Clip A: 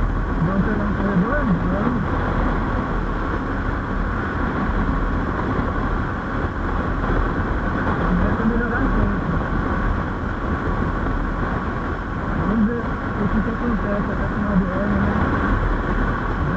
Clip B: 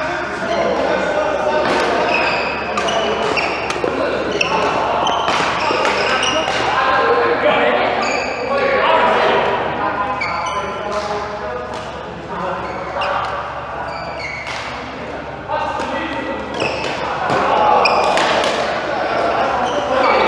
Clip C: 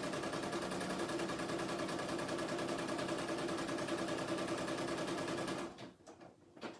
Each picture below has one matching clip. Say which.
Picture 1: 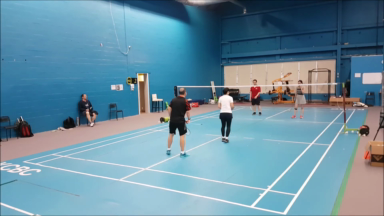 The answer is B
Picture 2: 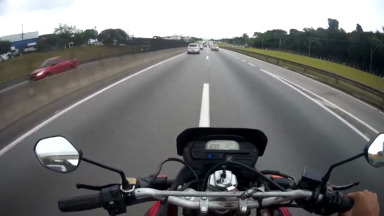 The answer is A